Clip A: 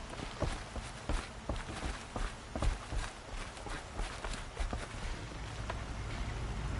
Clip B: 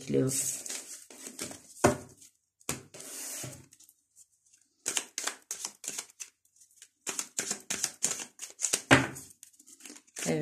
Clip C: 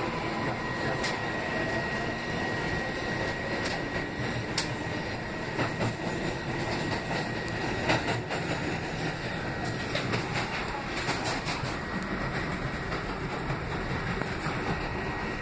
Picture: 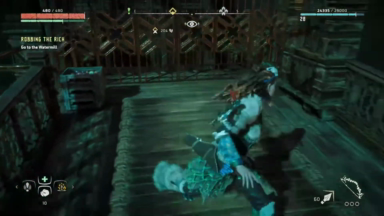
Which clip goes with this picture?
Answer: A